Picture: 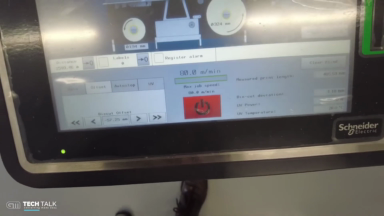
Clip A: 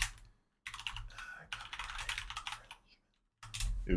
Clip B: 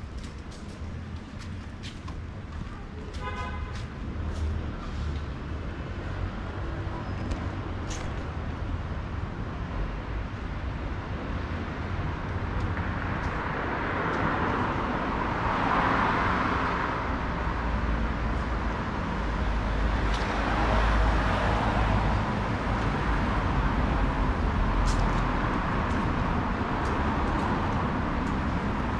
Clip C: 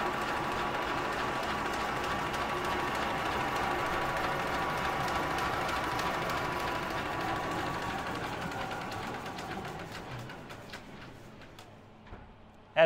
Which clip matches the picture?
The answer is C